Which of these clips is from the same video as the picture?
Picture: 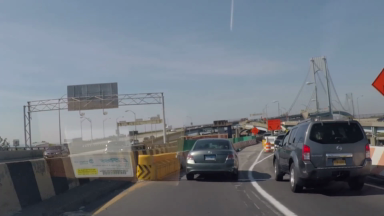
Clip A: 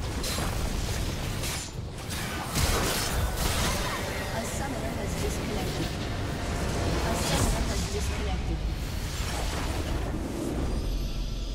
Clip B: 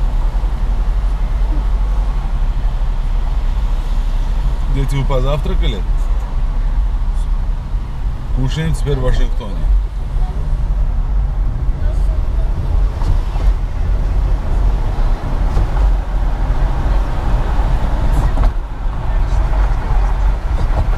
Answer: B